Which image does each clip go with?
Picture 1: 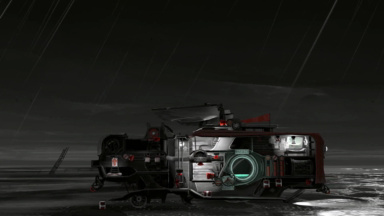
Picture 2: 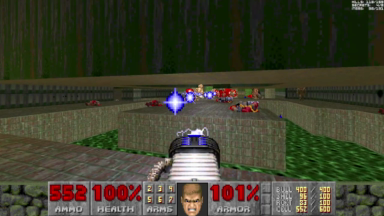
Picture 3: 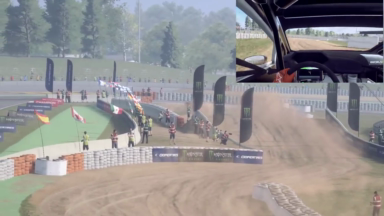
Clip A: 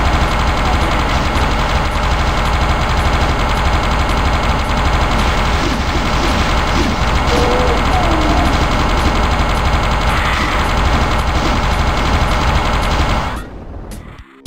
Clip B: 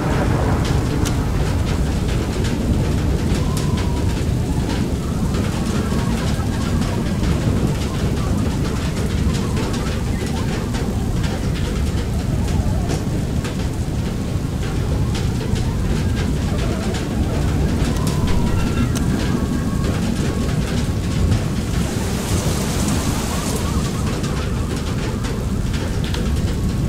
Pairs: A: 2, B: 1